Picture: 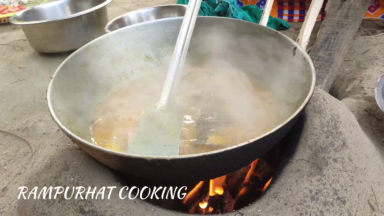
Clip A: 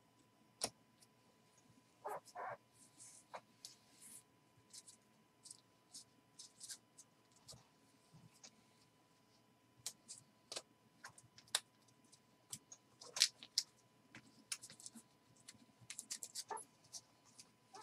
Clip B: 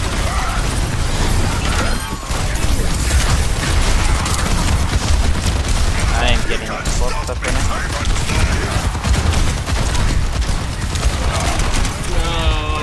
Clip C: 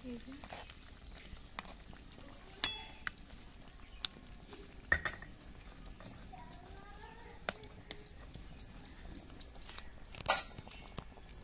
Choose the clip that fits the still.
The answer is C